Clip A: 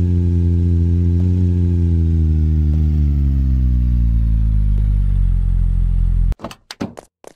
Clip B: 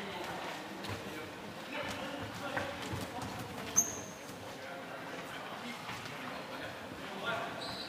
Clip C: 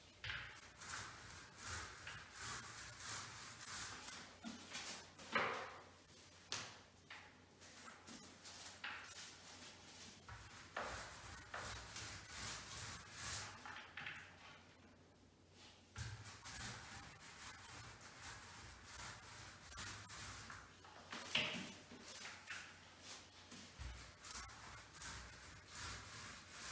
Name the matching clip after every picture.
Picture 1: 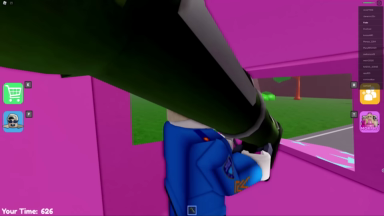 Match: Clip A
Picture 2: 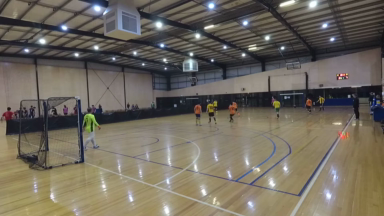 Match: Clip B